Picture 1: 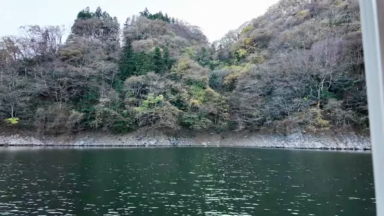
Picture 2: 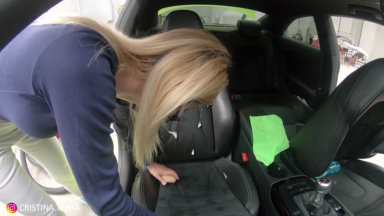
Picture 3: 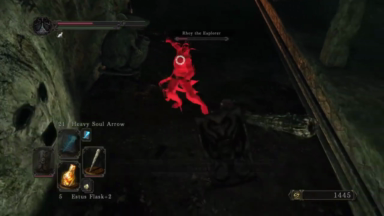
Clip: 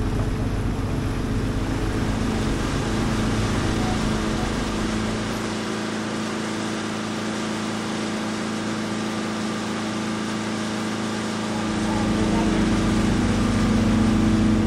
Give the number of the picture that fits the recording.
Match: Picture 1